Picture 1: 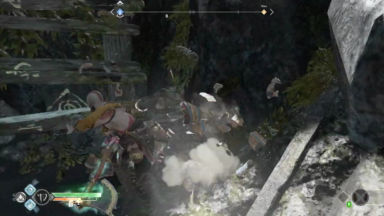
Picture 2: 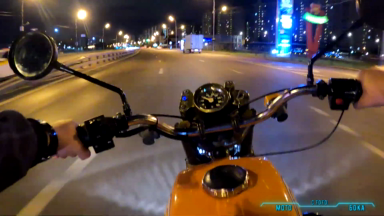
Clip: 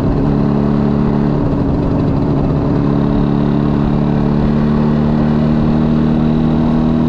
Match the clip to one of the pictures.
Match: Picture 2